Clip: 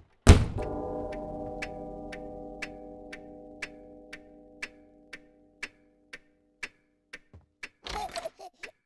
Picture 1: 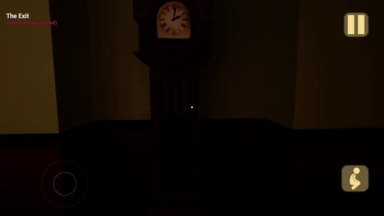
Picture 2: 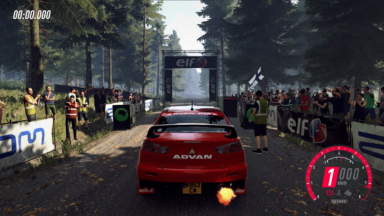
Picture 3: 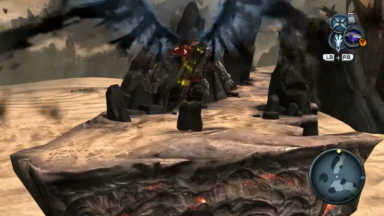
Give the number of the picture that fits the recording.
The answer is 1